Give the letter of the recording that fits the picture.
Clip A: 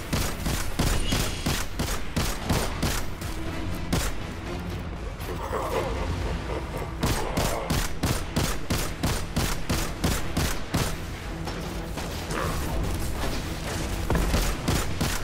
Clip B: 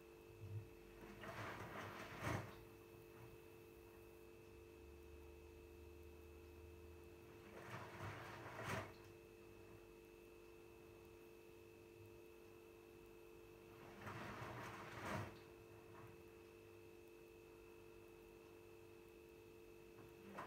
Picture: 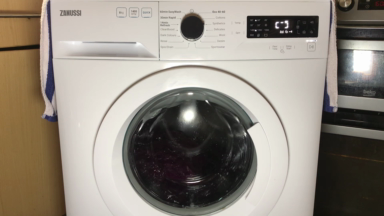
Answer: B